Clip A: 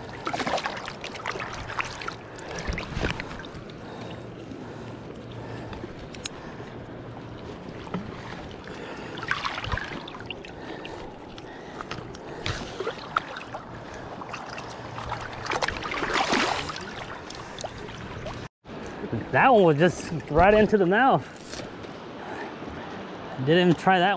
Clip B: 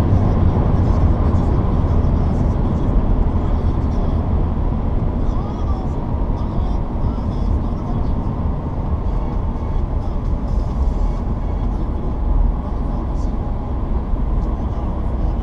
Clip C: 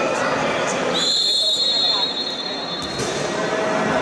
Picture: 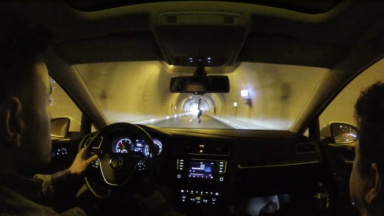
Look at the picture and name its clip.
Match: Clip B